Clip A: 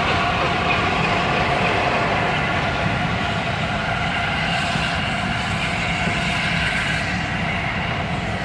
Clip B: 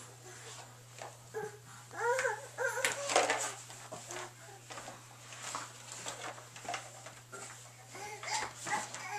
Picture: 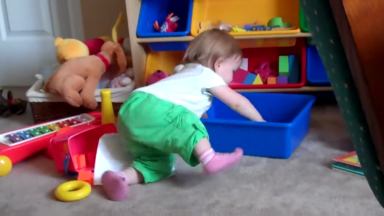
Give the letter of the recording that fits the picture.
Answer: B